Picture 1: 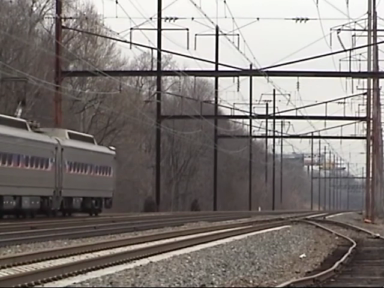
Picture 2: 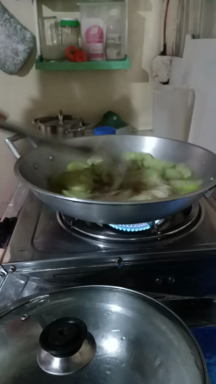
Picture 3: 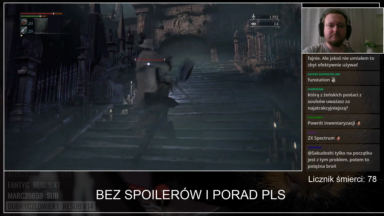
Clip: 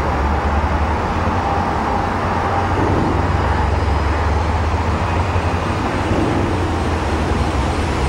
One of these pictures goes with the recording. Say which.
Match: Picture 1